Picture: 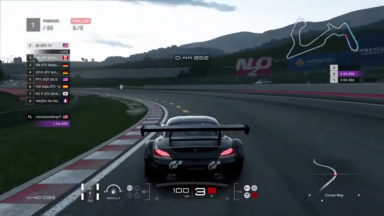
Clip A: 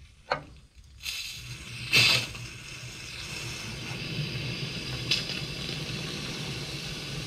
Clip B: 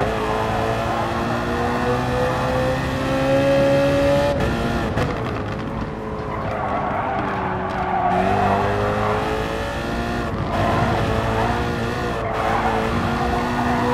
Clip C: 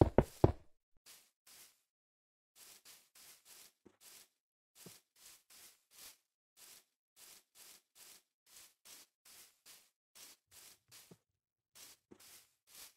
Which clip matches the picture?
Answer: B